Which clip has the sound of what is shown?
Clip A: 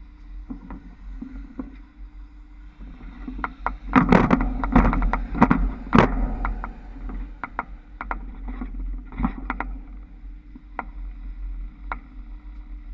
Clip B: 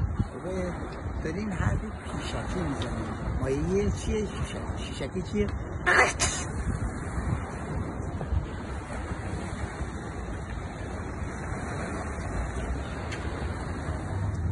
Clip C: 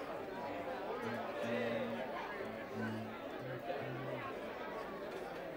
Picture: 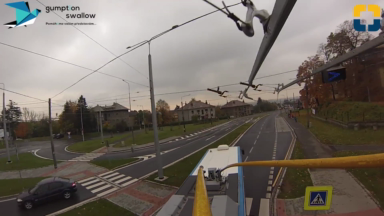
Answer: A